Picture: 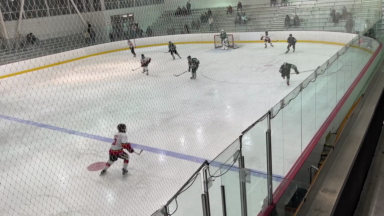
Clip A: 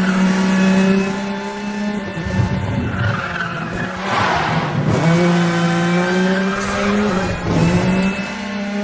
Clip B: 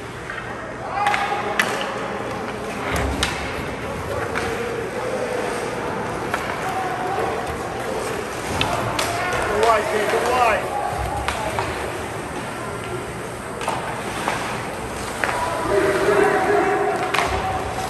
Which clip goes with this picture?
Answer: B